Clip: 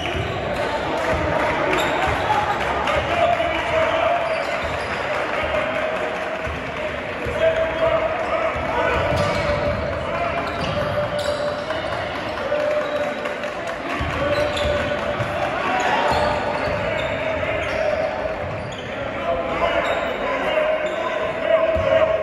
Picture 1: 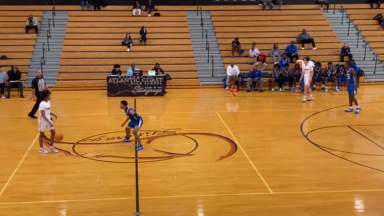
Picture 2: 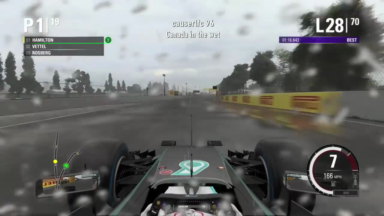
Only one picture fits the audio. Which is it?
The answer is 1